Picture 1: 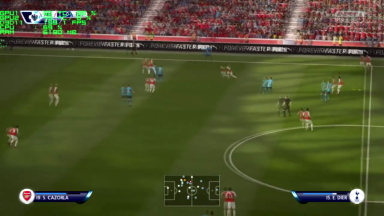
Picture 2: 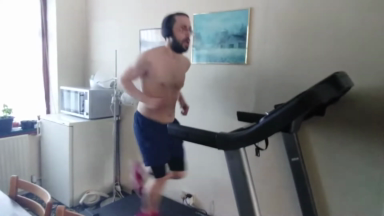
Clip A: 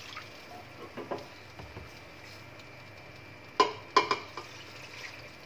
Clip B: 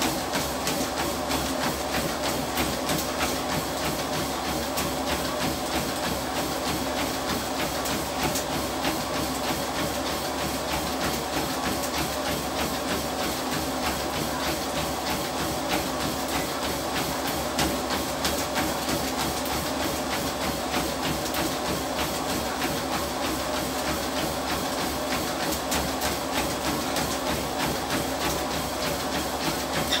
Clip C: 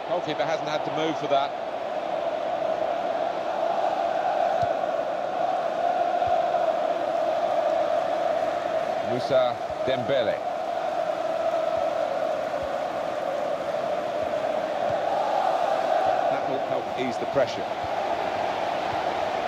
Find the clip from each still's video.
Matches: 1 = C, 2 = B